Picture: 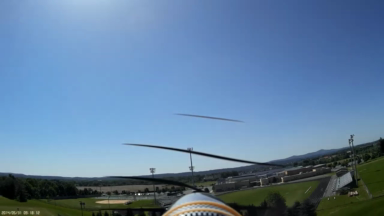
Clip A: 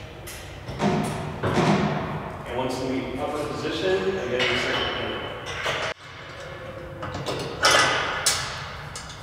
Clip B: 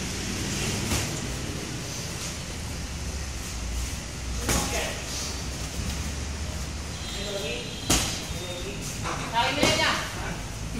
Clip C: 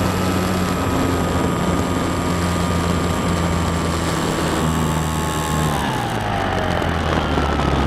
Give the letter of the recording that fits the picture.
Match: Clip C